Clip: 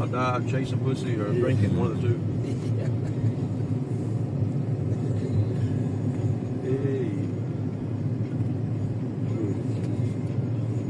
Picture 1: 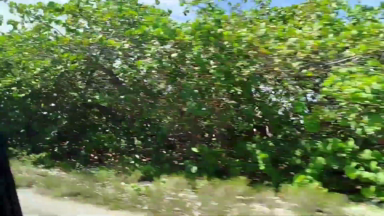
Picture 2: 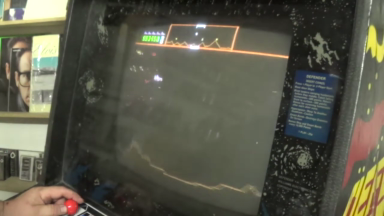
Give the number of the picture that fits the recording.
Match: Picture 1